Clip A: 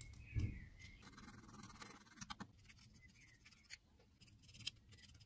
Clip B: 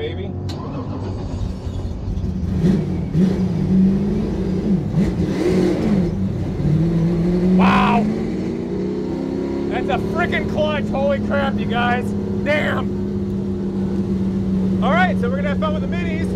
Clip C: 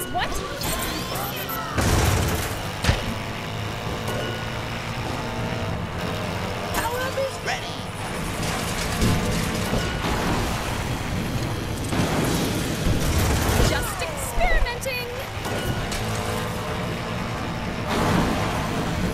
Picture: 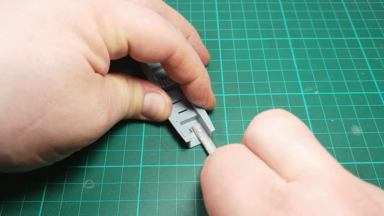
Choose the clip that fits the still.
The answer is A